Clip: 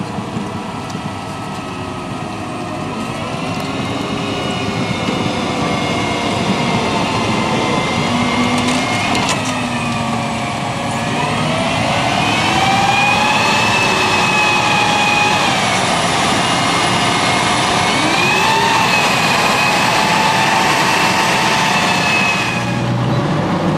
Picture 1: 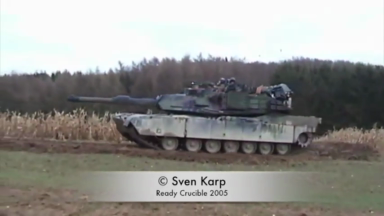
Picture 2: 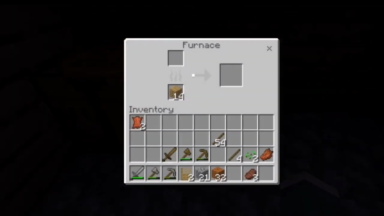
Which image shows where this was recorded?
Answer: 1